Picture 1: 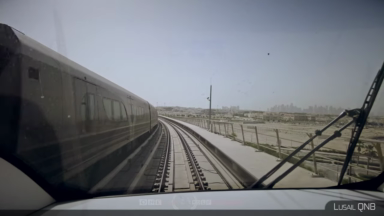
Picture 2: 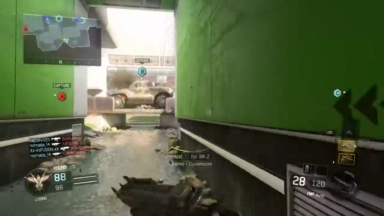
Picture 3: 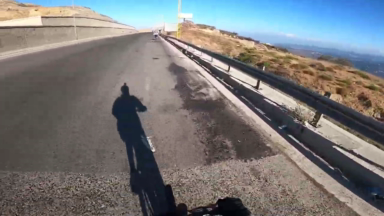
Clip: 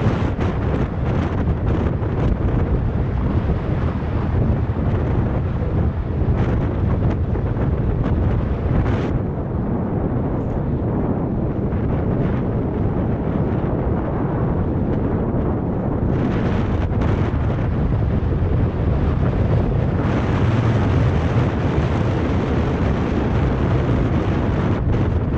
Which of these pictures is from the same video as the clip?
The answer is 3